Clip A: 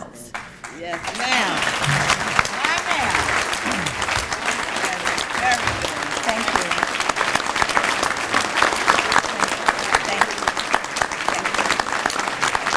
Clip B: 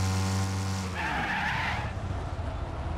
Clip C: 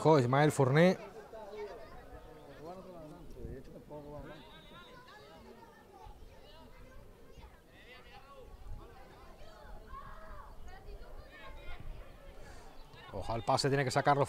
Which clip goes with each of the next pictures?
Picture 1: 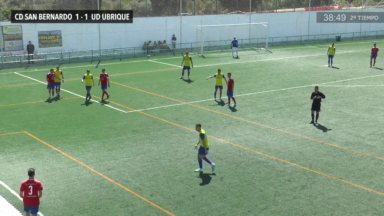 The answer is C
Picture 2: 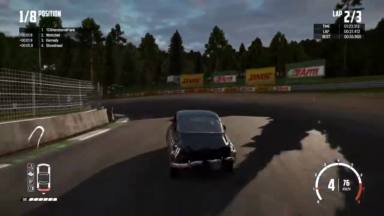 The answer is B